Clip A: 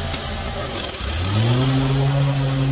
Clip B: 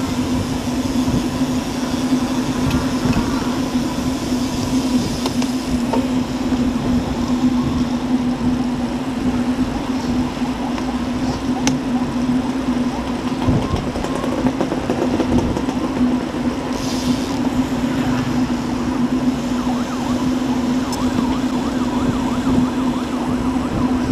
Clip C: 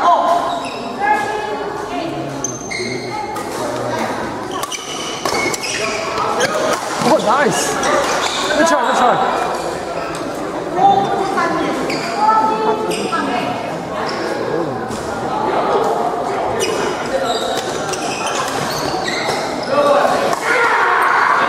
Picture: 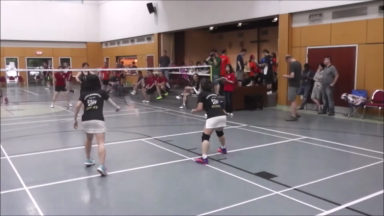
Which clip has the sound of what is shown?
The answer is C